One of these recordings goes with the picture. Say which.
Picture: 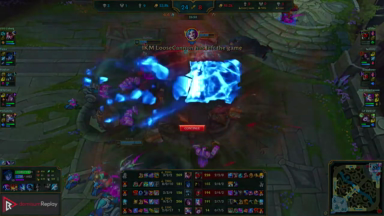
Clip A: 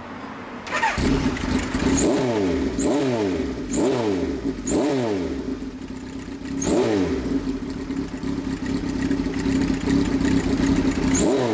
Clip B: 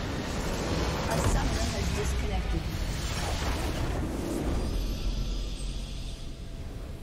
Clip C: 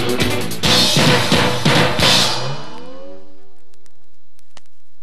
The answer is B